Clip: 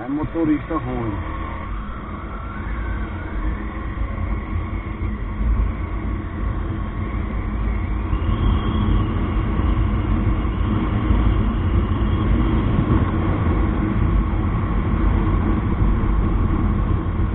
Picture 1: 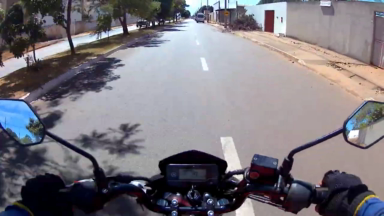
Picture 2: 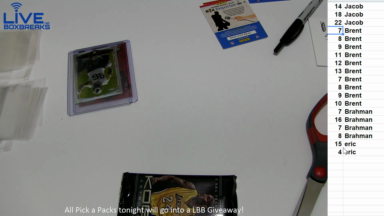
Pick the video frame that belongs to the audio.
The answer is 1